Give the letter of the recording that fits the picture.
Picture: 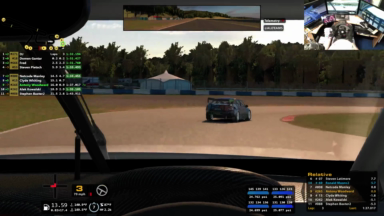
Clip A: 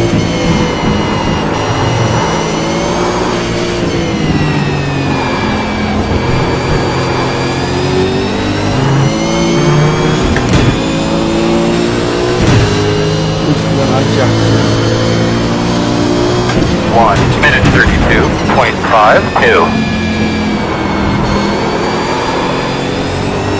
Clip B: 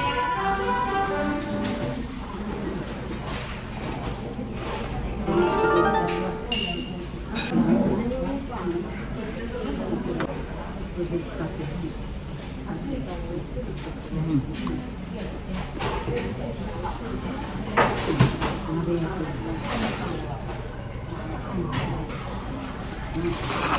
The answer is A